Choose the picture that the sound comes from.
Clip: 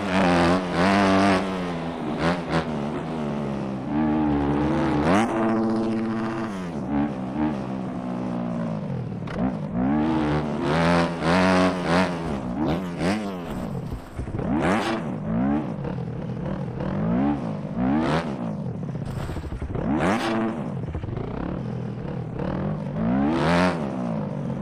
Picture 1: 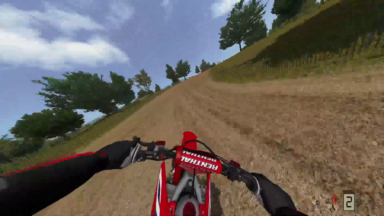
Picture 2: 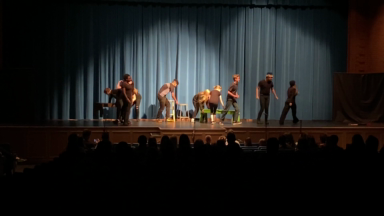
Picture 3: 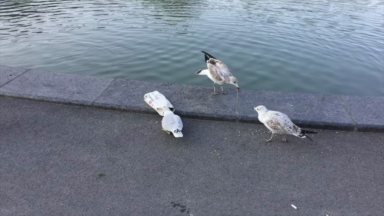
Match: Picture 1